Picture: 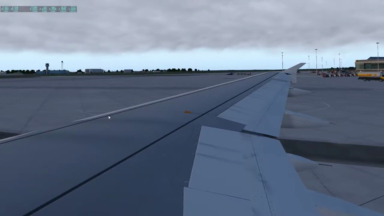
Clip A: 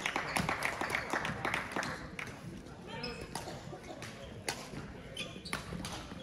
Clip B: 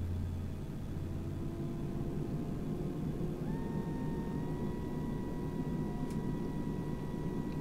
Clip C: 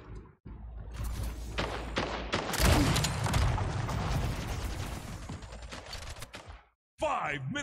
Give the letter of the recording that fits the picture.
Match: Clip B